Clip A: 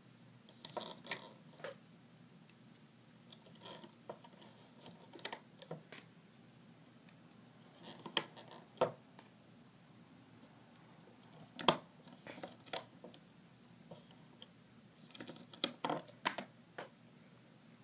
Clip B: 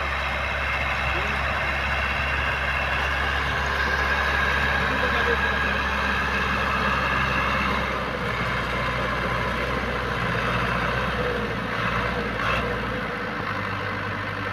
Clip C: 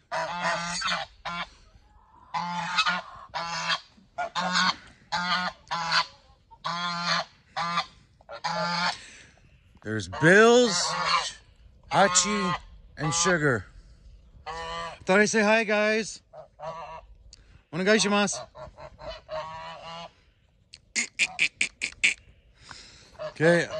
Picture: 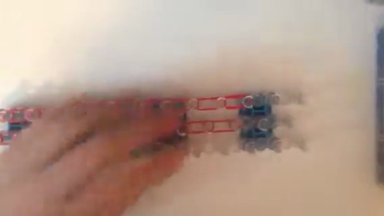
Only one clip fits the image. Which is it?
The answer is A